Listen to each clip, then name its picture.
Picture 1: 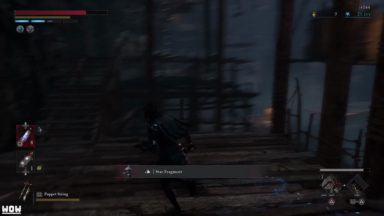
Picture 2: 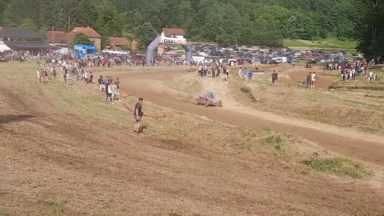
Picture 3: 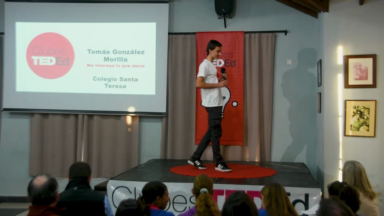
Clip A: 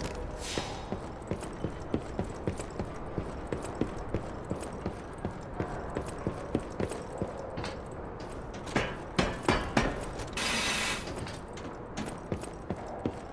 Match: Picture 1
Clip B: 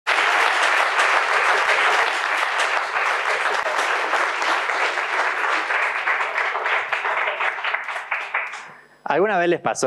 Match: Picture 3